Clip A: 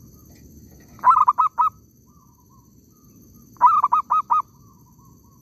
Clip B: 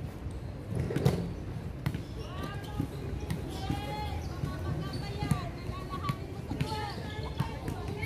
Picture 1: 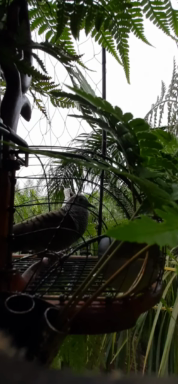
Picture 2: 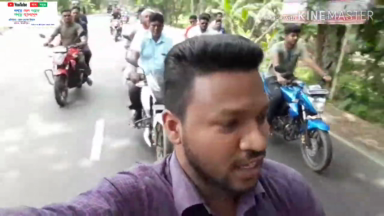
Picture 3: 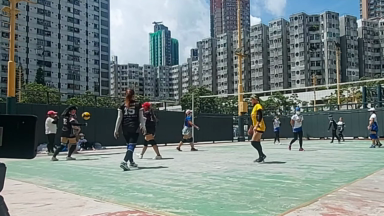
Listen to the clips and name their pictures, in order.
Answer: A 1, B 3